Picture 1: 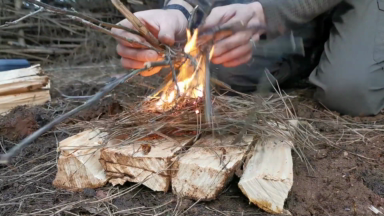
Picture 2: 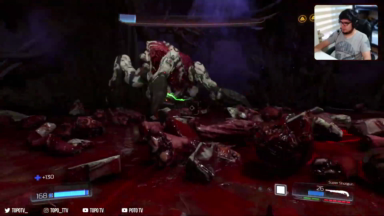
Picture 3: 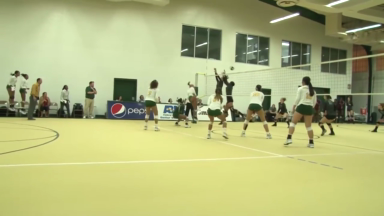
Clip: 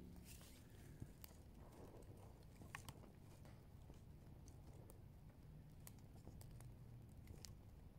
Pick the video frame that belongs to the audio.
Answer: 1